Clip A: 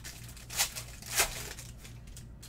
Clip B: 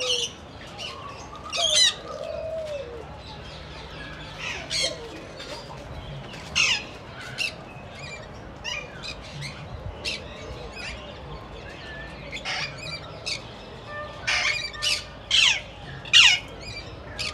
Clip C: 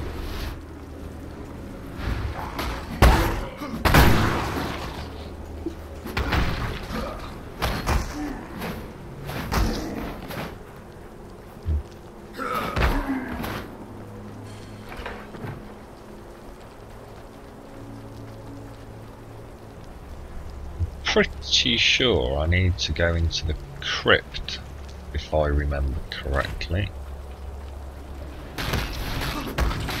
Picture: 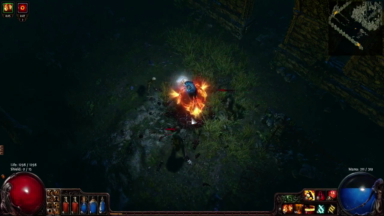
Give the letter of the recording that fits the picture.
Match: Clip C